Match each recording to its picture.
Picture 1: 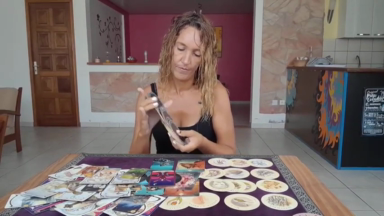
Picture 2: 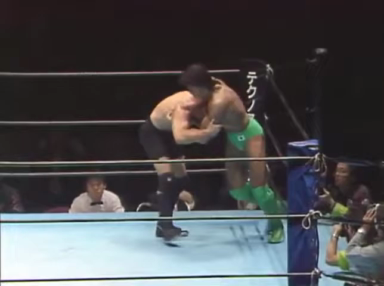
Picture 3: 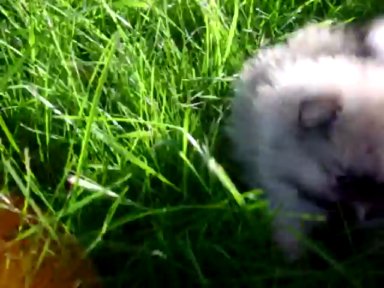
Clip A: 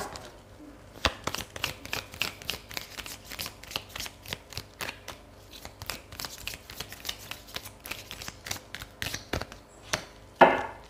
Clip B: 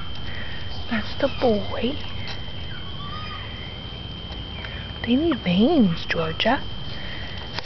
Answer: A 1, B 3